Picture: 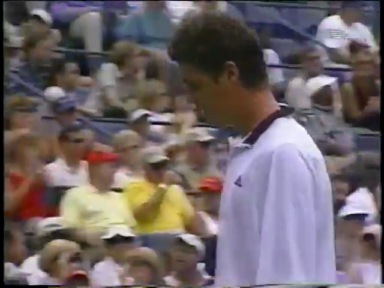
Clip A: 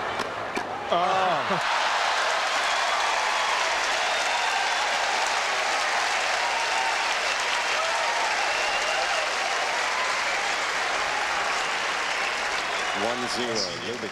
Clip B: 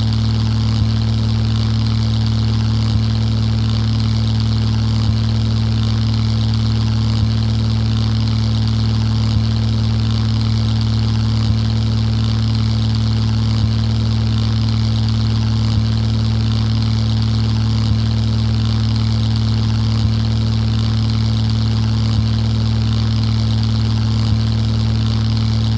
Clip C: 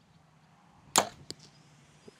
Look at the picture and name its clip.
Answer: A